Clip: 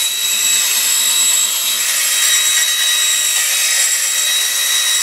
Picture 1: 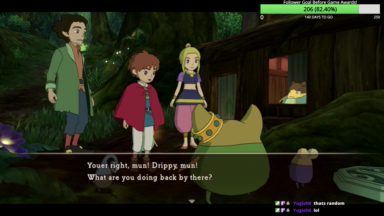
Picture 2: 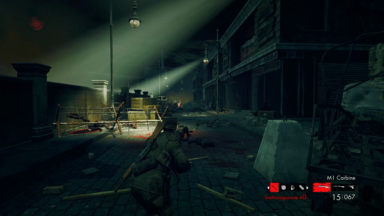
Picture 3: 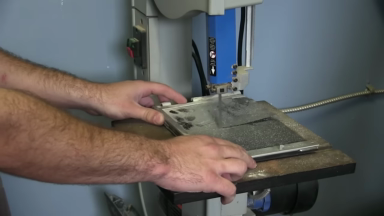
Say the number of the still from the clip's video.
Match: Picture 3